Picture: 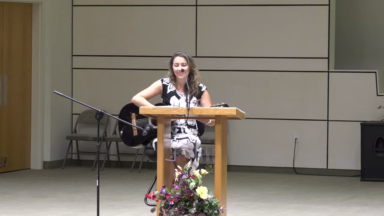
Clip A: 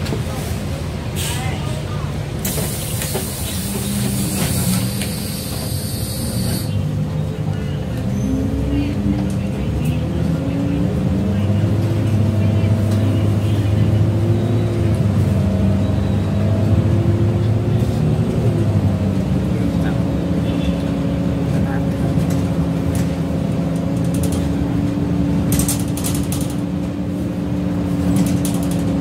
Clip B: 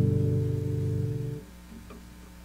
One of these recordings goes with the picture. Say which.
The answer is B